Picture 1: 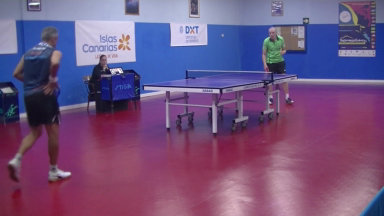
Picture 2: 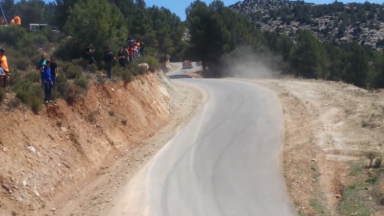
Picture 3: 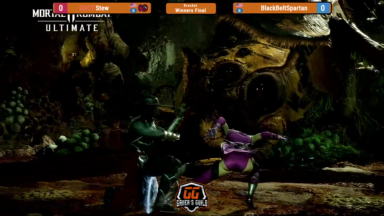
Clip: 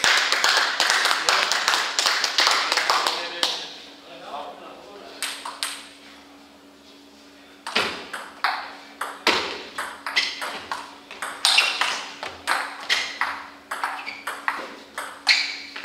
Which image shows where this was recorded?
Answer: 1